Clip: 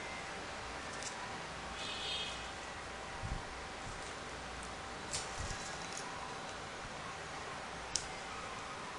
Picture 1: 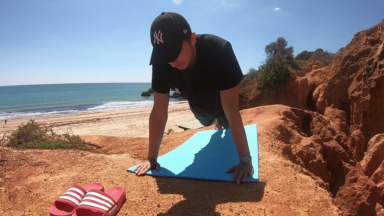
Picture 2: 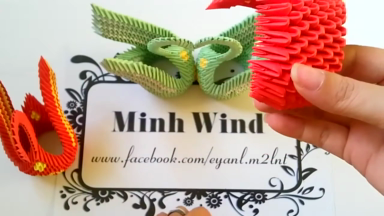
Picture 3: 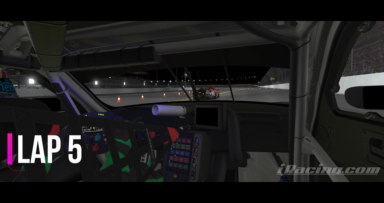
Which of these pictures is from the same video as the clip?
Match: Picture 2